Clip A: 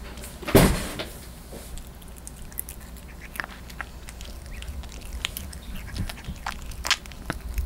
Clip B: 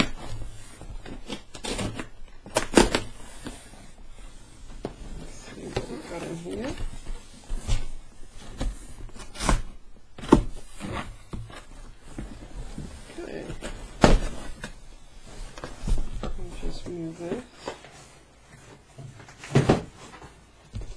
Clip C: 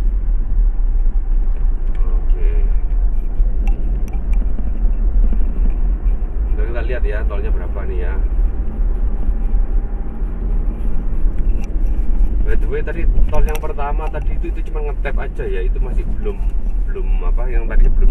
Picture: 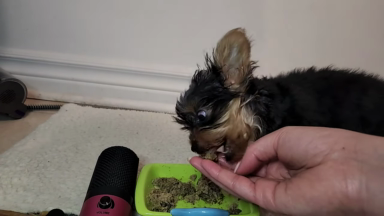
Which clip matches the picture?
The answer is A